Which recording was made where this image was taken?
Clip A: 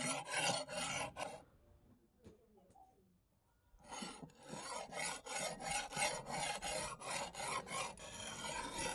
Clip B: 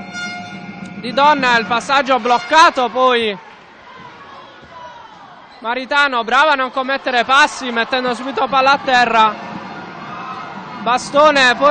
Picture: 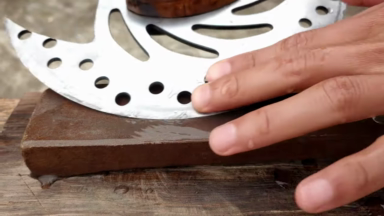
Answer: A